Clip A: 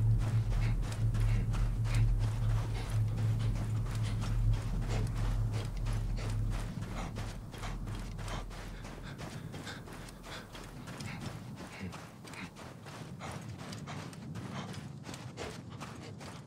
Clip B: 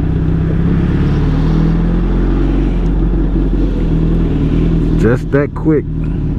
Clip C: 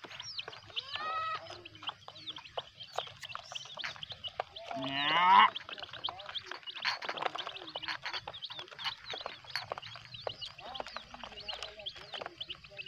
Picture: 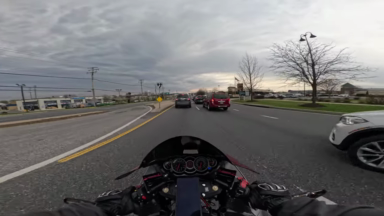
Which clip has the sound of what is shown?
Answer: B